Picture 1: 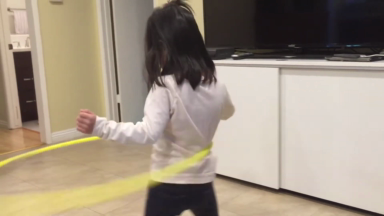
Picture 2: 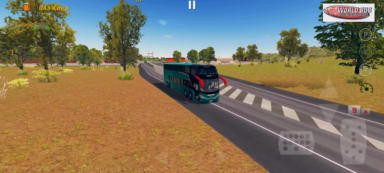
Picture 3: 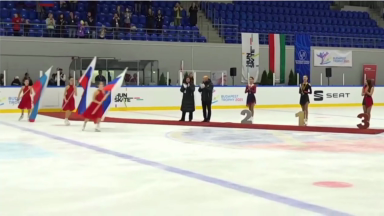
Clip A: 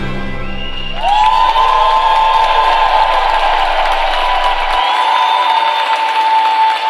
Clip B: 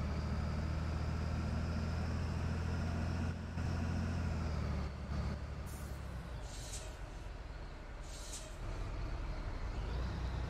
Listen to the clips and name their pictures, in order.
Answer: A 3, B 2